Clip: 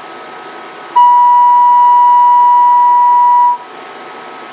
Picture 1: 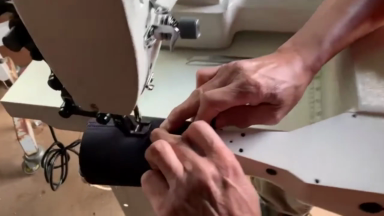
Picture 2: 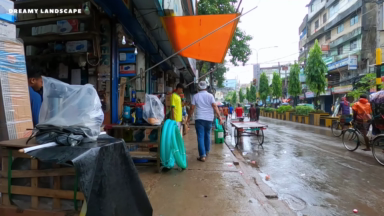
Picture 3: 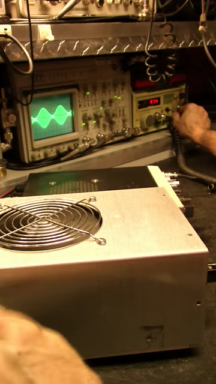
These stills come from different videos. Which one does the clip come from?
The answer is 3